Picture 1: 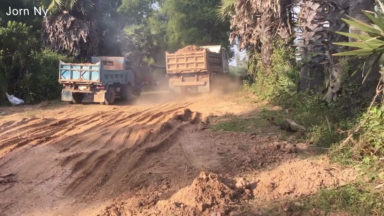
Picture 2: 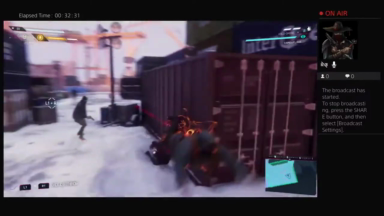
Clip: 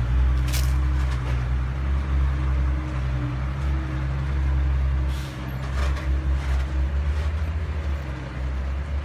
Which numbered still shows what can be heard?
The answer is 1